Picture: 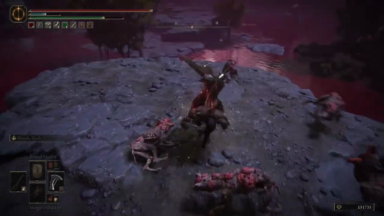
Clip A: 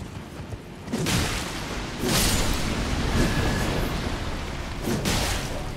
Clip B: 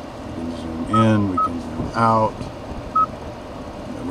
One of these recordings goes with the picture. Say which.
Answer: A